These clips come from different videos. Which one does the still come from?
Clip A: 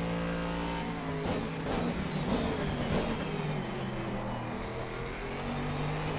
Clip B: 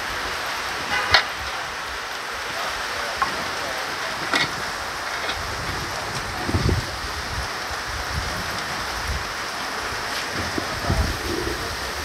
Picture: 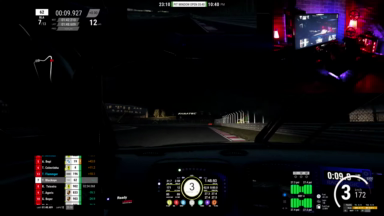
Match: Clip A